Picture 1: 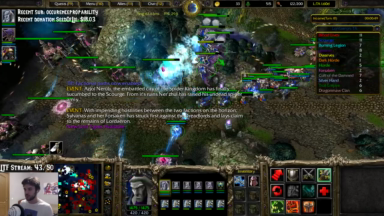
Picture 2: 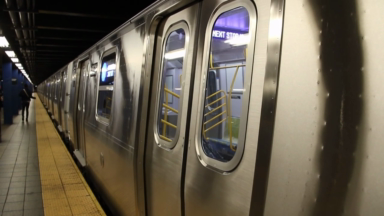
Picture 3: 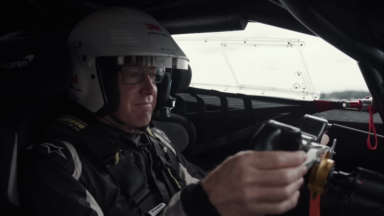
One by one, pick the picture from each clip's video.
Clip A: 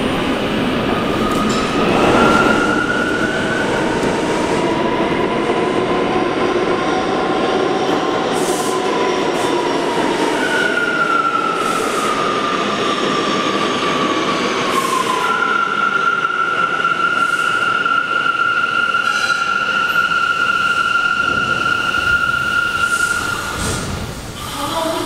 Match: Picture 2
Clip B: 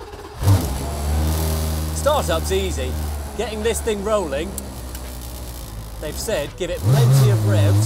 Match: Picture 3